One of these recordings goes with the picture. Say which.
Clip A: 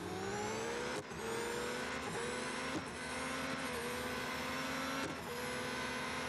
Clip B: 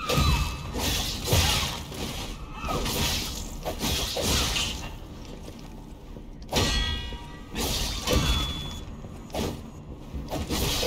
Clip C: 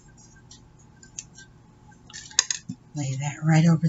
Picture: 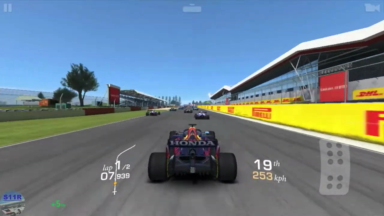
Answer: A